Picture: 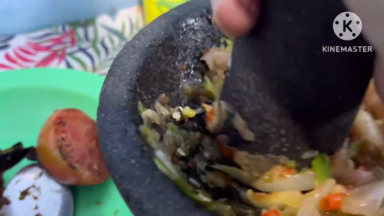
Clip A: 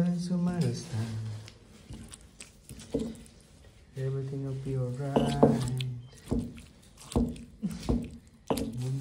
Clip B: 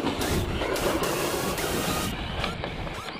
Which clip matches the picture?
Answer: A